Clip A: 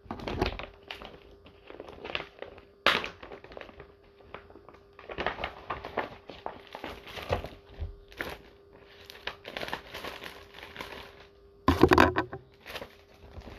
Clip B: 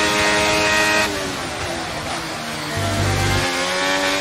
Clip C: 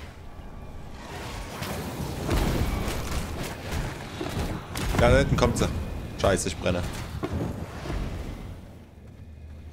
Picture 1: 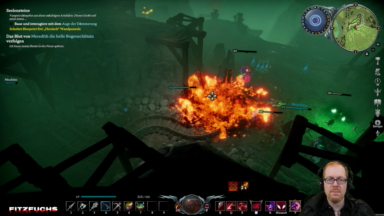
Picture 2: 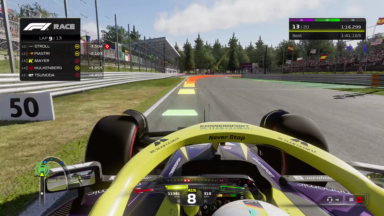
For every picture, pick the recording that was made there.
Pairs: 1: C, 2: B